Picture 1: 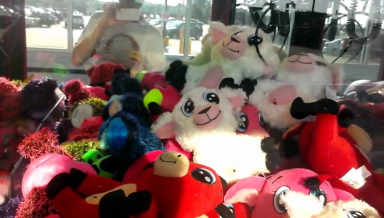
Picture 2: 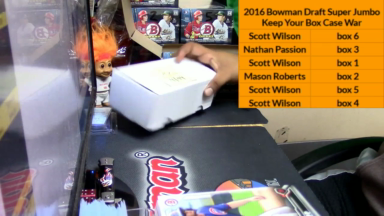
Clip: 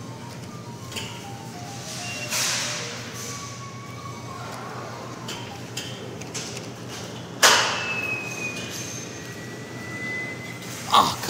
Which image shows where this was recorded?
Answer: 1